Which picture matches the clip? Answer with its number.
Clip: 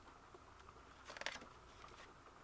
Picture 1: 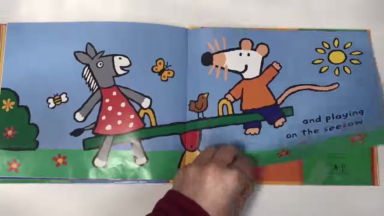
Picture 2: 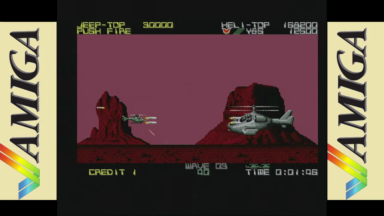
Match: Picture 1